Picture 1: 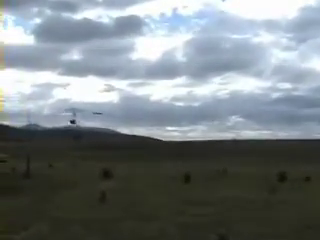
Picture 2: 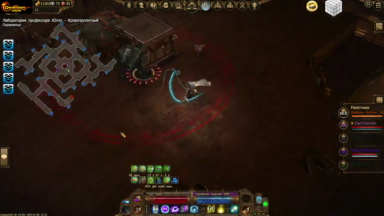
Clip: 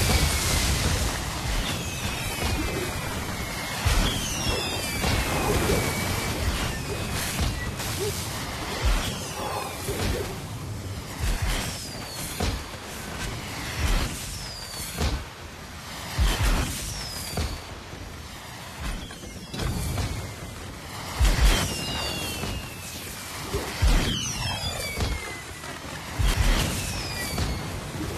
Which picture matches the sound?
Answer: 2